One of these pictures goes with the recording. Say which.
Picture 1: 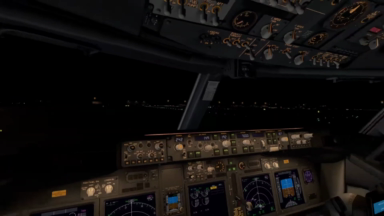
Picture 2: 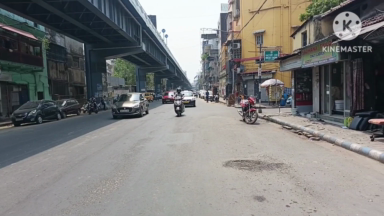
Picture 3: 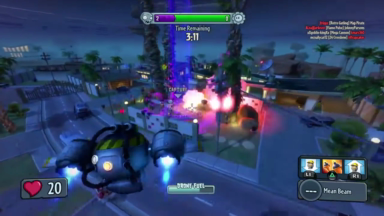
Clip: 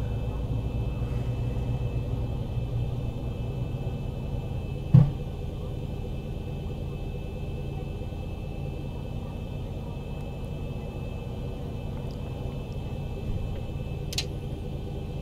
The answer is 1